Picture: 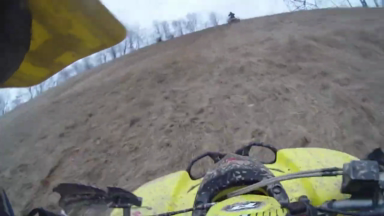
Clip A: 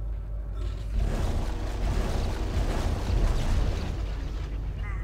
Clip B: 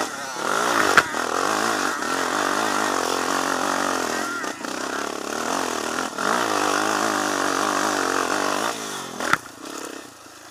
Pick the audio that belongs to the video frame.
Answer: B